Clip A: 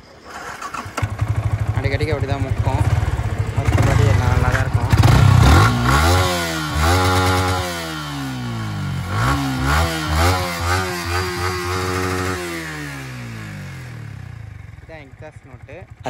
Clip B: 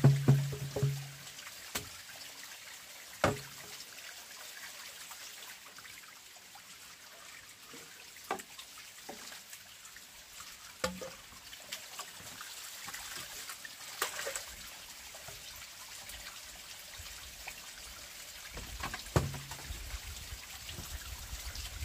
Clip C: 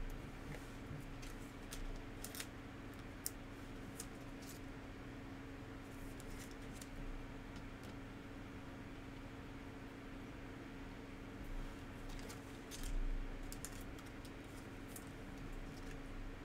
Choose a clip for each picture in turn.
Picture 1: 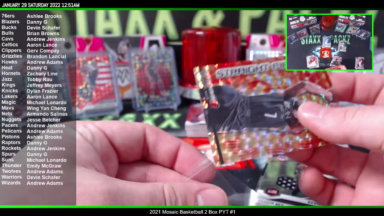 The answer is C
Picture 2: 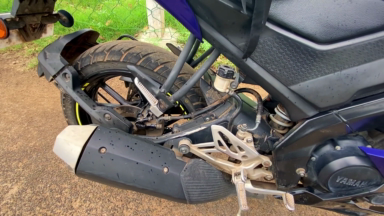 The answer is A